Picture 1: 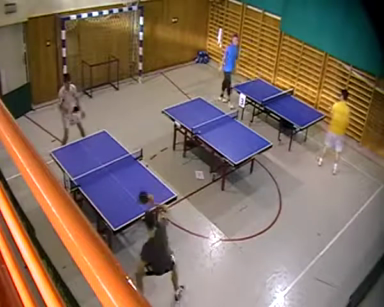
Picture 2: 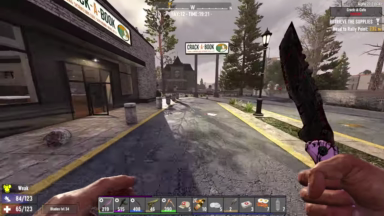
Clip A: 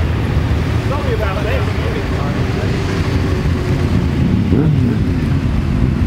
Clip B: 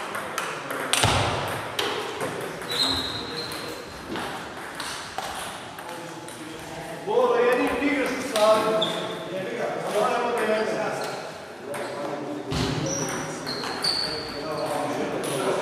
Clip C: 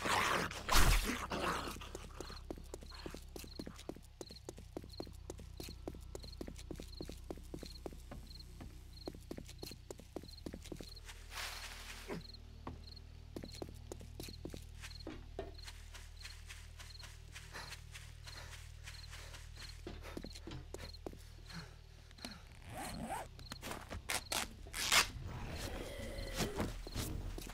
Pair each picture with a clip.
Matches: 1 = B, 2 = C